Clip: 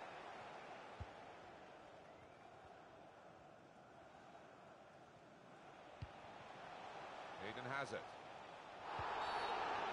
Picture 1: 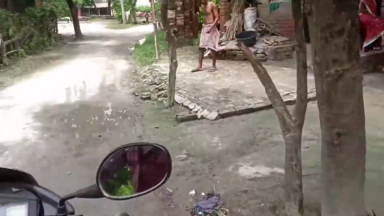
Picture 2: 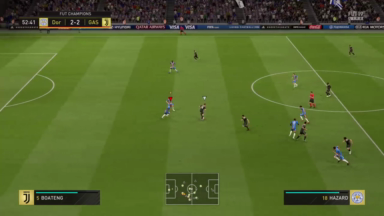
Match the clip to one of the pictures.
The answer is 2